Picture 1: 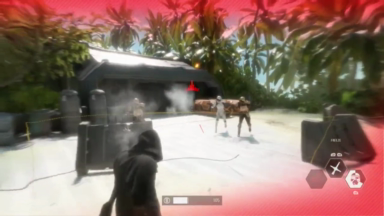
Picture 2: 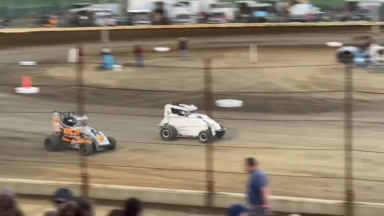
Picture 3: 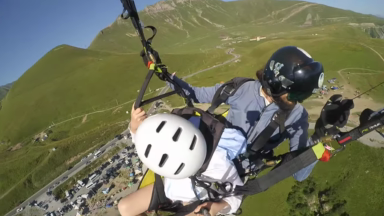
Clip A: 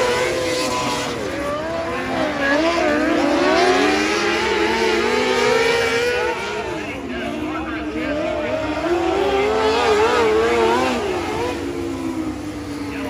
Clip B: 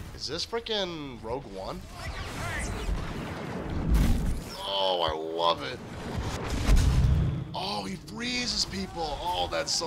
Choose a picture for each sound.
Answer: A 2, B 1